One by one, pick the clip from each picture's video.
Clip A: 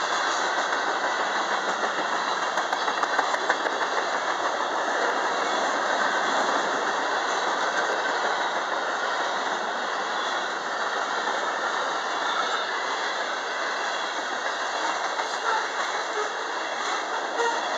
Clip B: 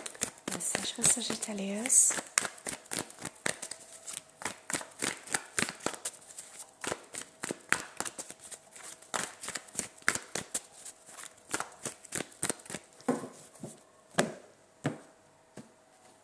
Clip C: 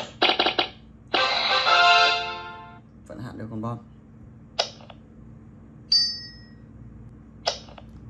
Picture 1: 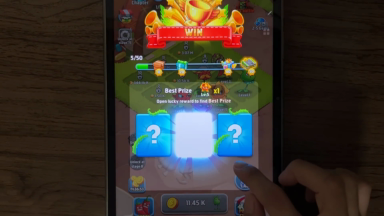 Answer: C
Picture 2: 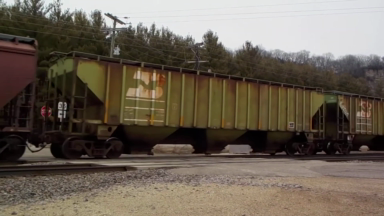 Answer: A